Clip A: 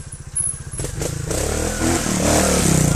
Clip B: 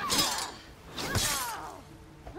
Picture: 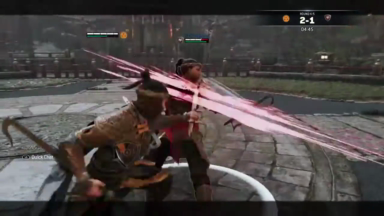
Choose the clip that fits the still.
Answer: B